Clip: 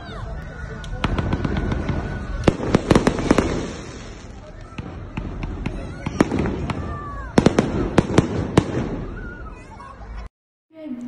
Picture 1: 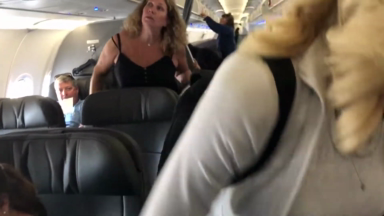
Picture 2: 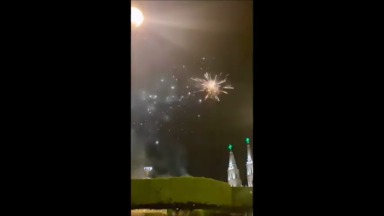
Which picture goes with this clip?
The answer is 2